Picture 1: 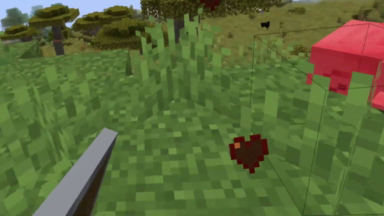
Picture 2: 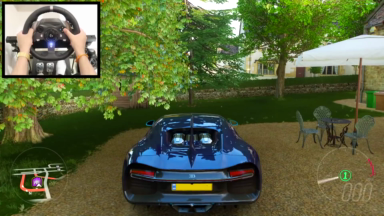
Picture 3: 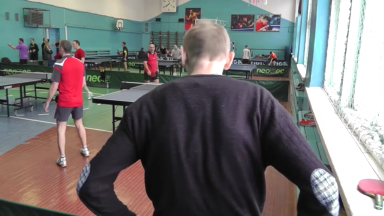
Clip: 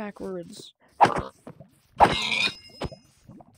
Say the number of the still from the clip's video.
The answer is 1